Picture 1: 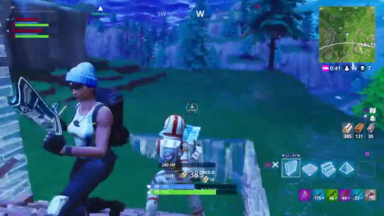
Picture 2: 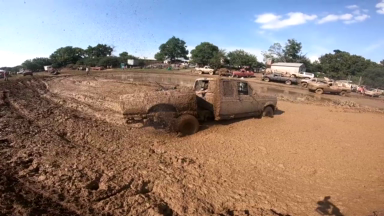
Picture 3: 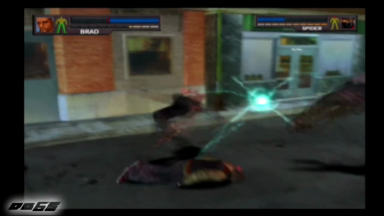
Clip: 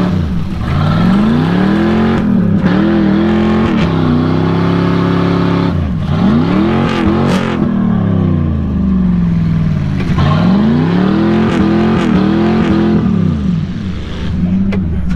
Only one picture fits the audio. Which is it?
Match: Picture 2